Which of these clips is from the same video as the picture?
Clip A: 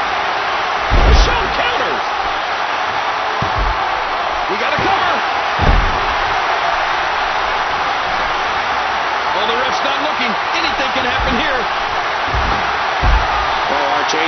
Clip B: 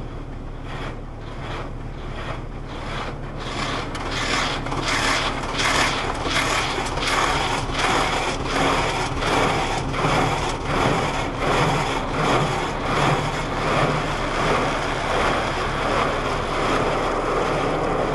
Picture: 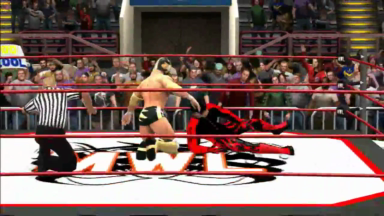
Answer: A